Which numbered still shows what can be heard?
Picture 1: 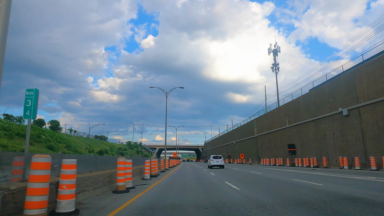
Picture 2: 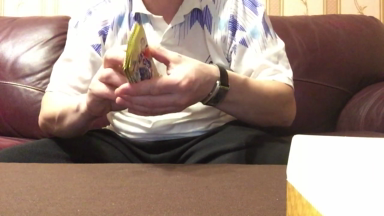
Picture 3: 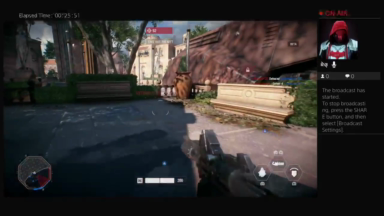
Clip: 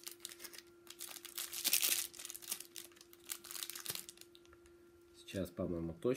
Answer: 2